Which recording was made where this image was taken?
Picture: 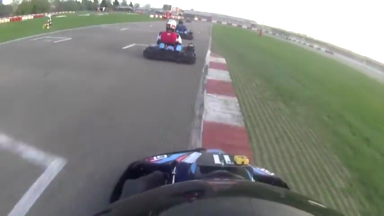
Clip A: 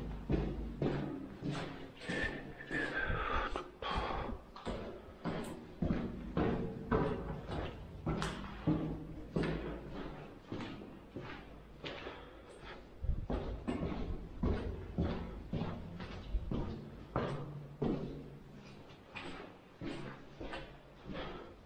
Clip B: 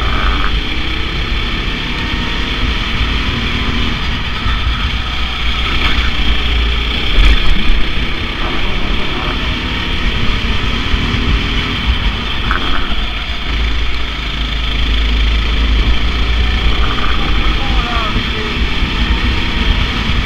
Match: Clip B